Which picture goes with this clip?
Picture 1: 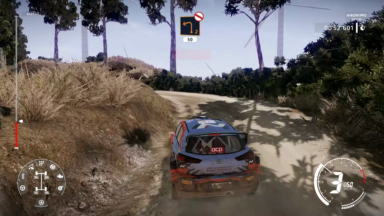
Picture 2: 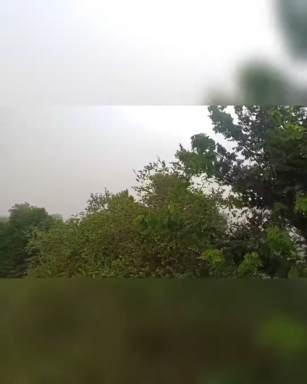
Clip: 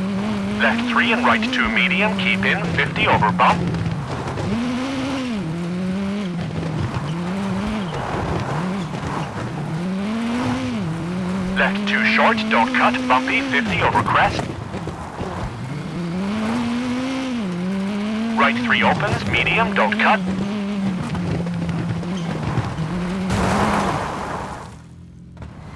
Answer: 1